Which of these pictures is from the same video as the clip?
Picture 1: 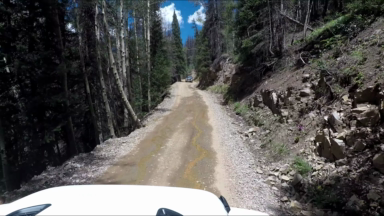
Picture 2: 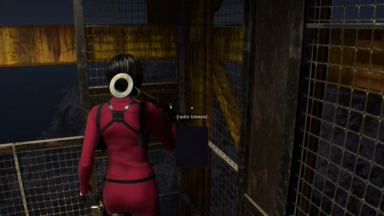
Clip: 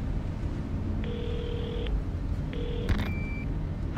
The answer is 2